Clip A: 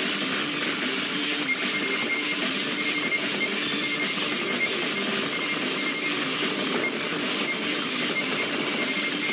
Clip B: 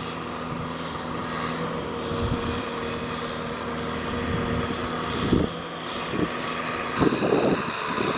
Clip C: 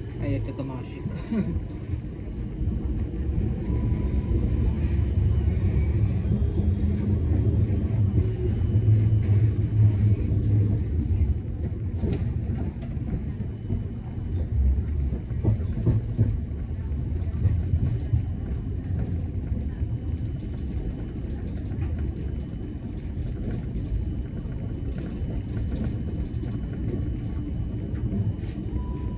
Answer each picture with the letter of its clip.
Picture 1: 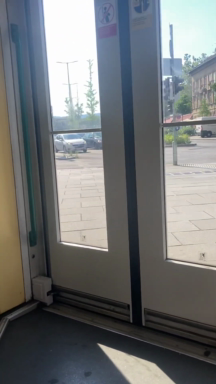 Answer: C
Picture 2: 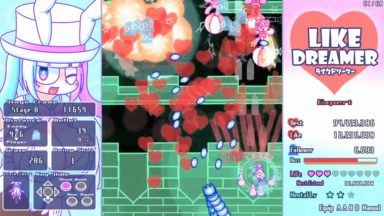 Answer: A